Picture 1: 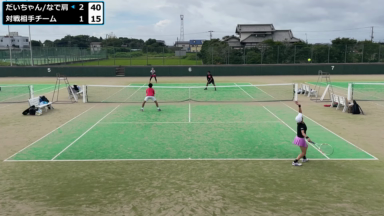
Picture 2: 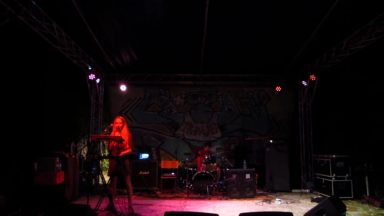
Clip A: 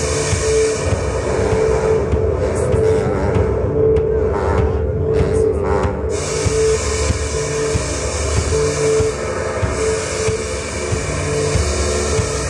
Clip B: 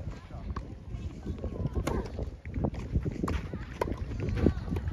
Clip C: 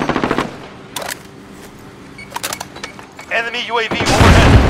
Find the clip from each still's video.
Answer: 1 B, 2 A